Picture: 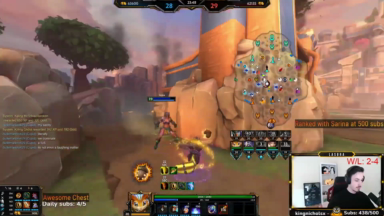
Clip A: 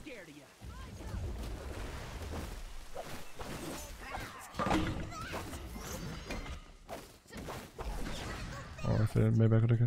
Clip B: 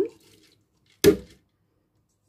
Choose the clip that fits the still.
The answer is A